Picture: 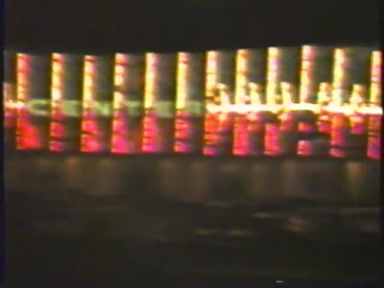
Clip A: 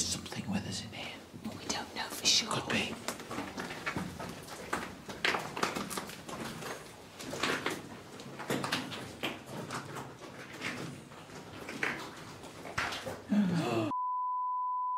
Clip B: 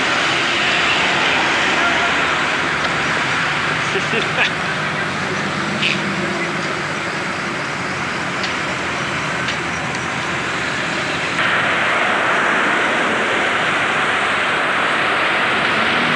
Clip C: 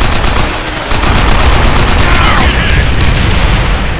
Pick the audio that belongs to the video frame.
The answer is B